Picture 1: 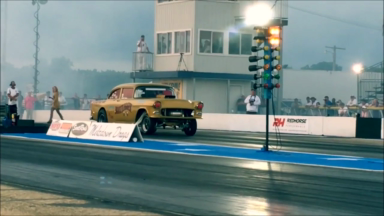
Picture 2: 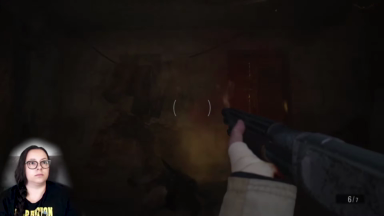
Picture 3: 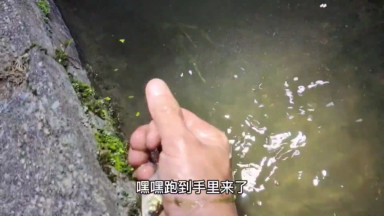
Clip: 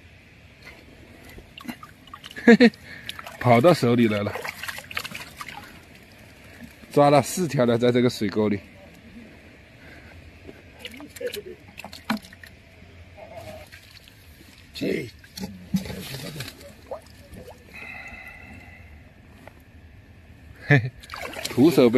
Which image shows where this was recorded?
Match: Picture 3